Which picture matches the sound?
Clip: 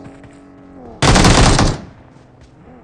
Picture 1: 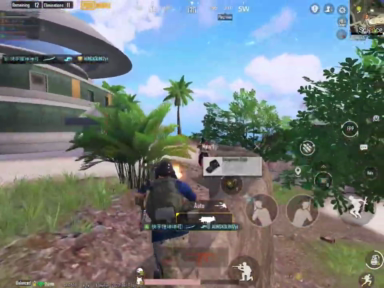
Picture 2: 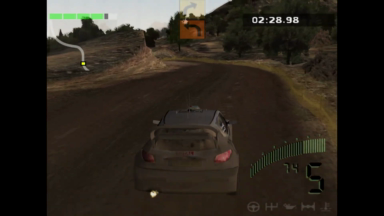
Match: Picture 1